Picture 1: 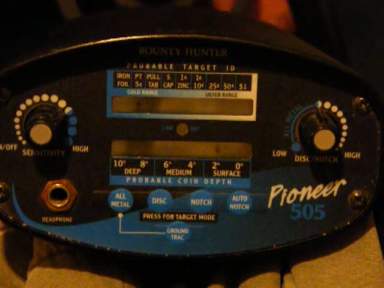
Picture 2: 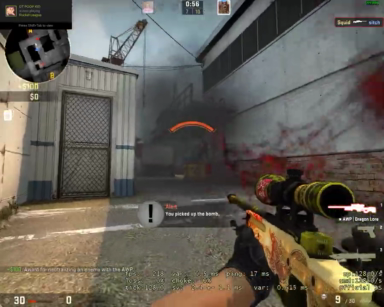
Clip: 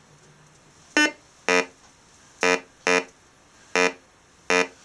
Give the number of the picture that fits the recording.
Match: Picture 1